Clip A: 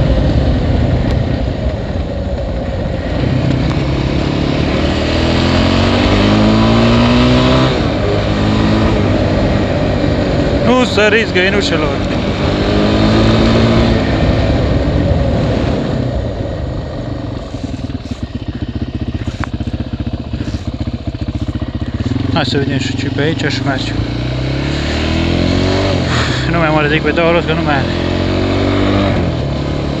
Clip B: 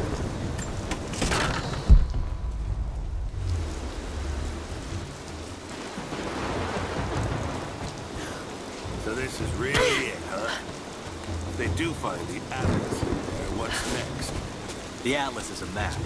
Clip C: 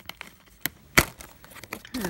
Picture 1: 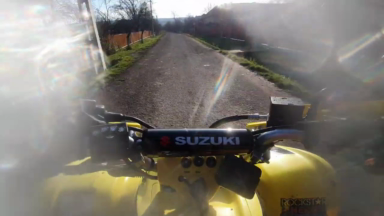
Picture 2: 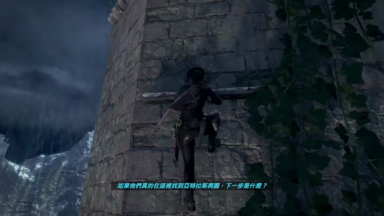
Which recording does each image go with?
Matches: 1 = A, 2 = B